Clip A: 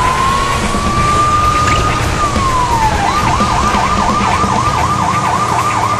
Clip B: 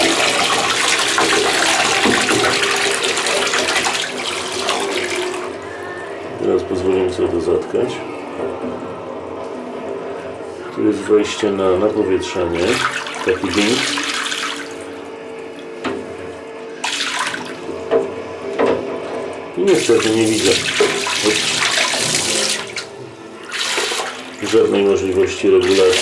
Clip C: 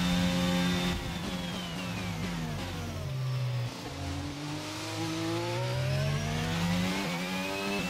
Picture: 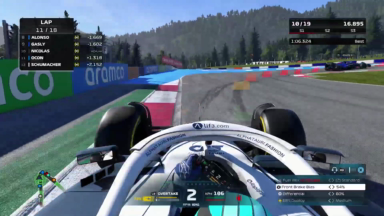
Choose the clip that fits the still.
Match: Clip C